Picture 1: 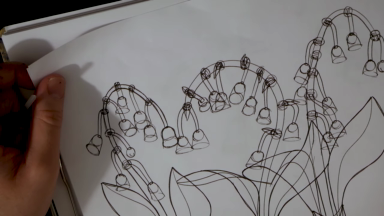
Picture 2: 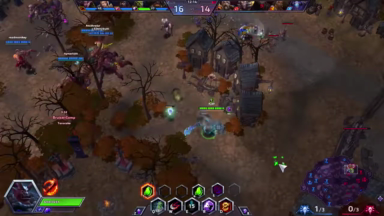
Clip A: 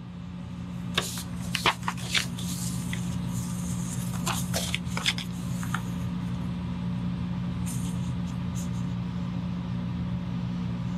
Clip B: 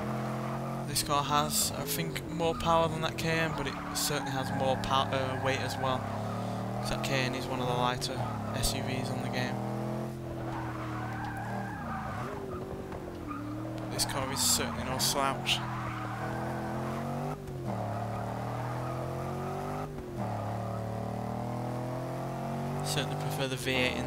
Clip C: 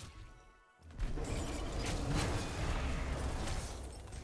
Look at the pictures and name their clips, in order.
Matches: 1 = A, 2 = C